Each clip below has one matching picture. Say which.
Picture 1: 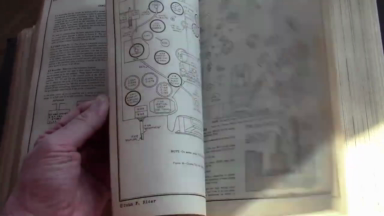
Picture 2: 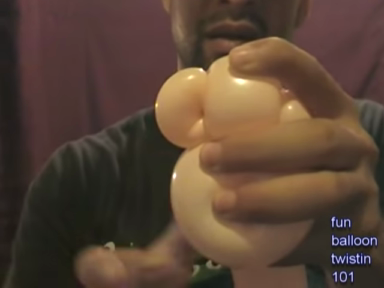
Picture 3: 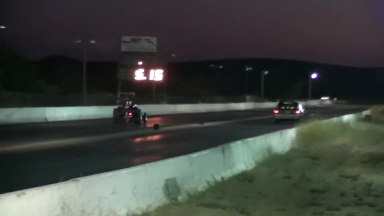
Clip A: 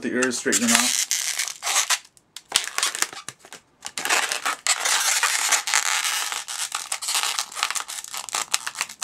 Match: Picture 2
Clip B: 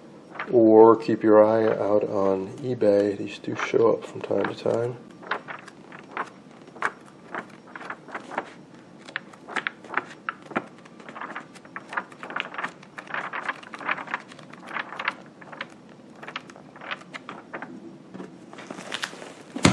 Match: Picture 1